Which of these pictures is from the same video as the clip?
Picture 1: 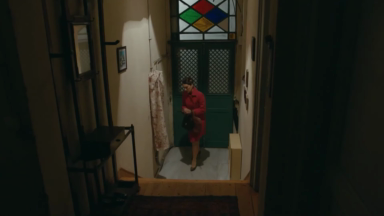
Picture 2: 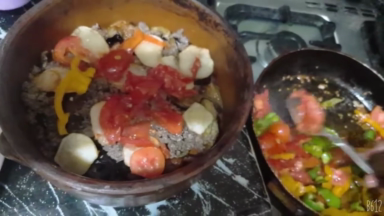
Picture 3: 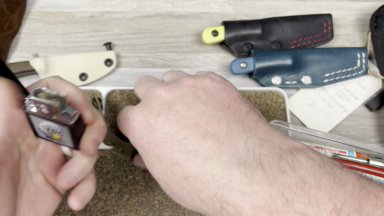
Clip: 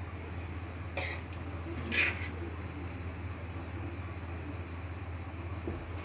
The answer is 2